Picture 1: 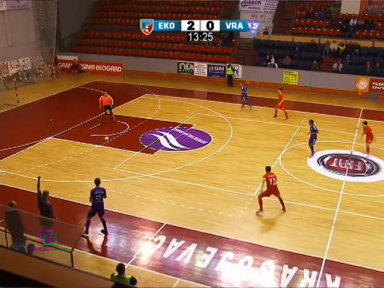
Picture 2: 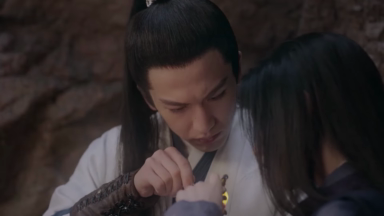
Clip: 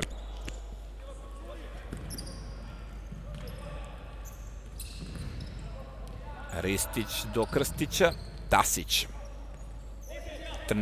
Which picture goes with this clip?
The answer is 1